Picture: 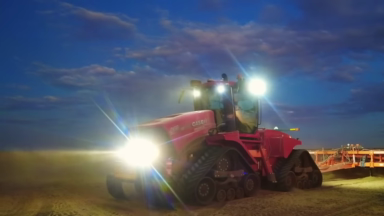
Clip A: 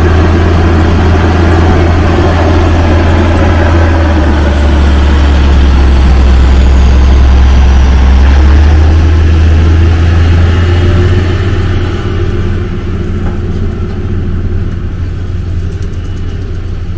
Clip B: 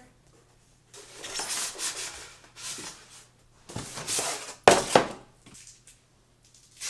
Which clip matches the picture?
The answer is A